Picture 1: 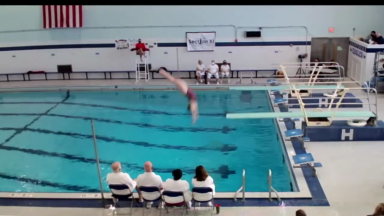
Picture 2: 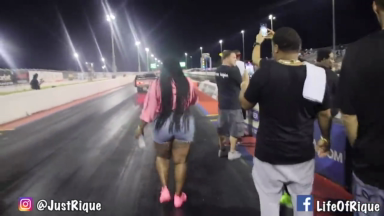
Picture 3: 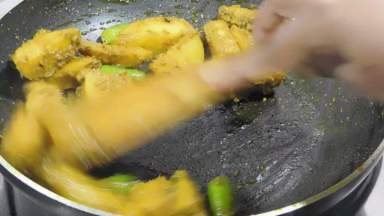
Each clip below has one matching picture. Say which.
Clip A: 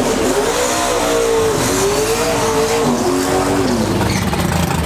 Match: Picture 2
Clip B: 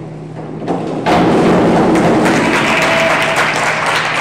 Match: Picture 1